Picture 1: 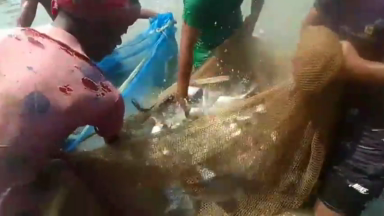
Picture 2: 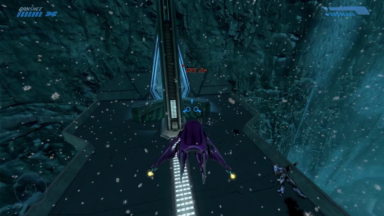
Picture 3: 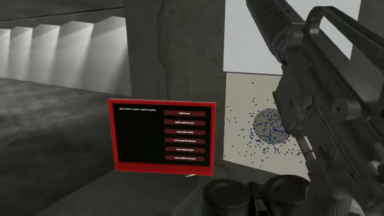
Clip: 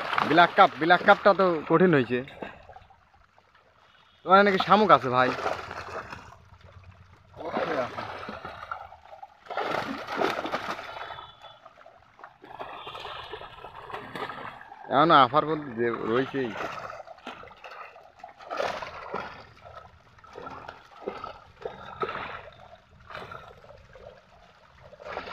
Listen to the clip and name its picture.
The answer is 1